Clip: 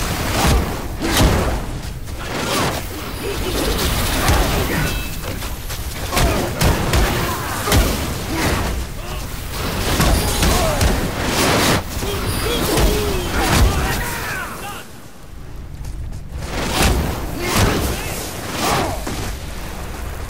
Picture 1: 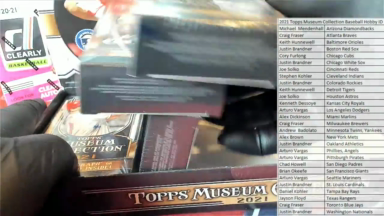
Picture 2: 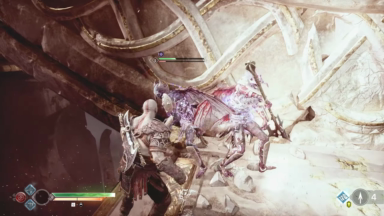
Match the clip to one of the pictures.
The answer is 2